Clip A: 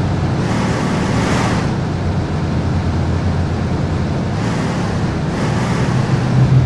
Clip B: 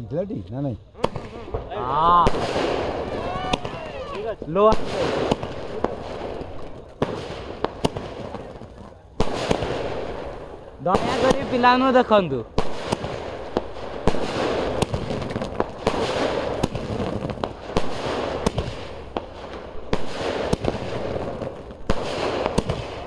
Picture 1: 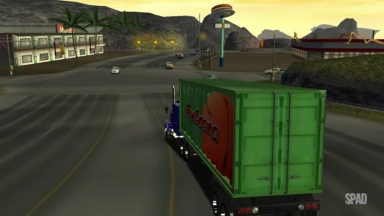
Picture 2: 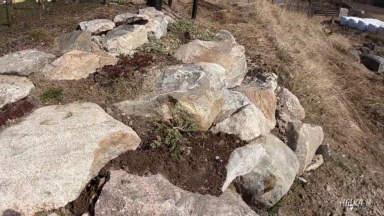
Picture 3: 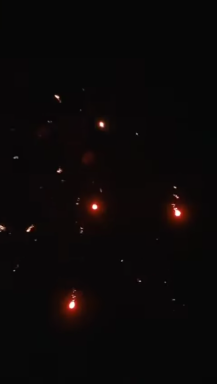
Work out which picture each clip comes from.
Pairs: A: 1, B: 3